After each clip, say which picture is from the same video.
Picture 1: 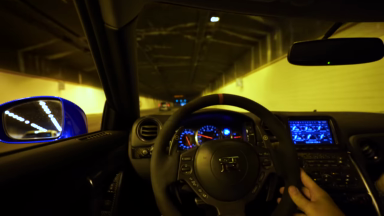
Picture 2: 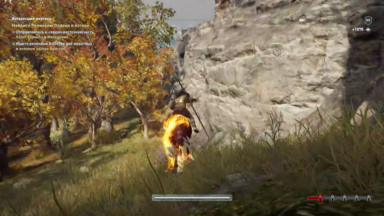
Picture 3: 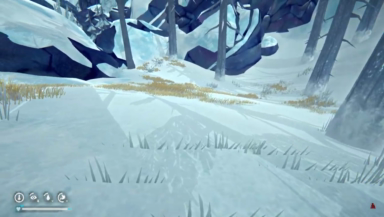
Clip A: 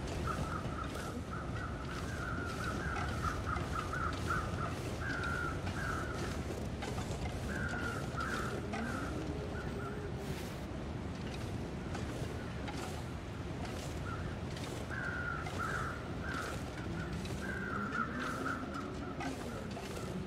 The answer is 3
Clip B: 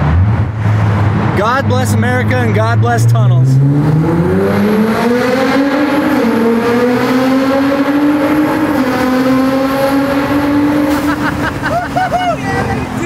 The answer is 1